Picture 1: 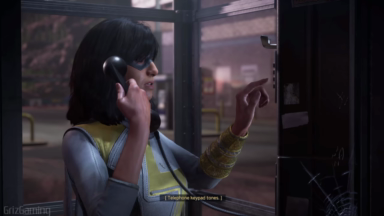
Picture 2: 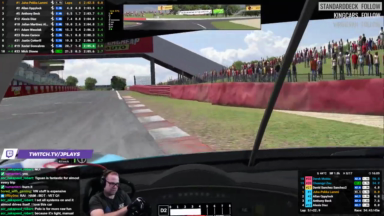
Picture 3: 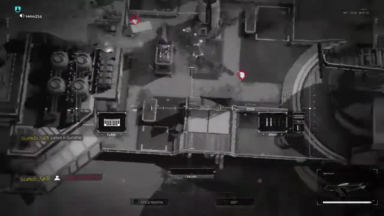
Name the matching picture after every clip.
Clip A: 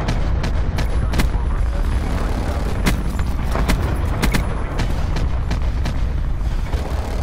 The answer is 3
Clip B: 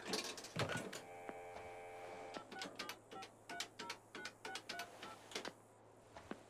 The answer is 1